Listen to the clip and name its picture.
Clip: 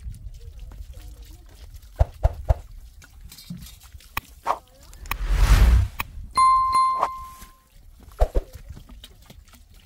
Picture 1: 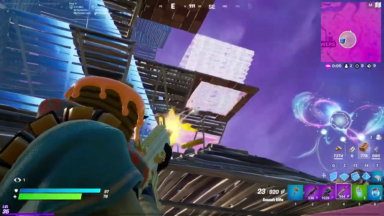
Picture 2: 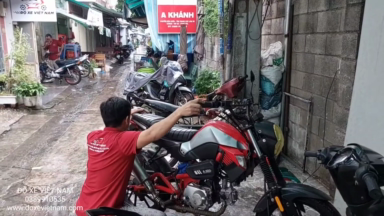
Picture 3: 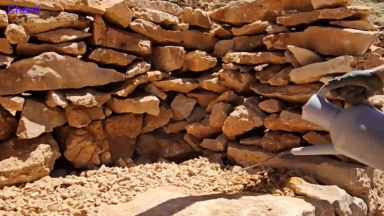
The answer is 3